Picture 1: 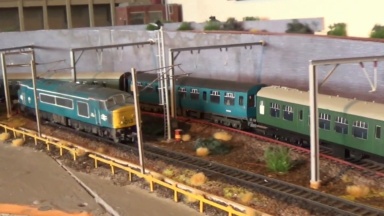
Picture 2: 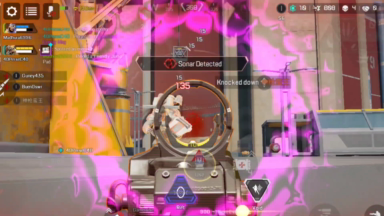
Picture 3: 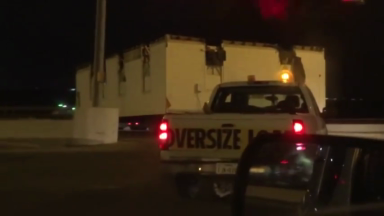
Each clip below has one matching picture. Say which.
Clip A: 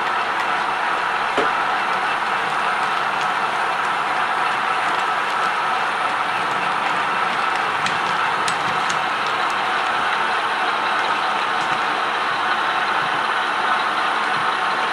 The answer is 1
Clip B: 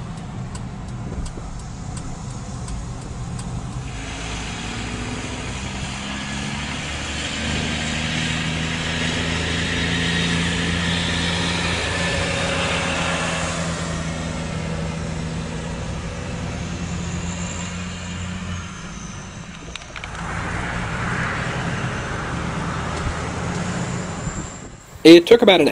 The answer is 3